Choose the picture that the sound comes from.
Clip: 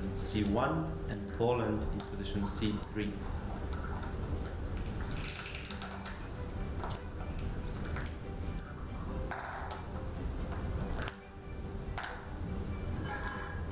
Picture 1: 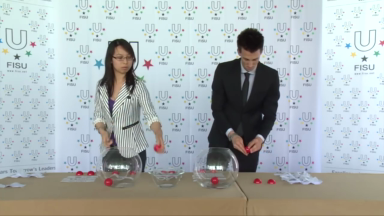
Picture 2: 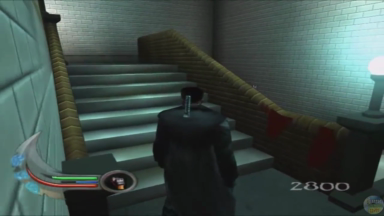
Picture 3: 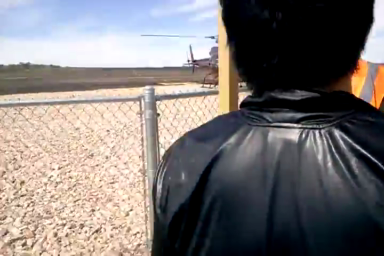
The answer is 1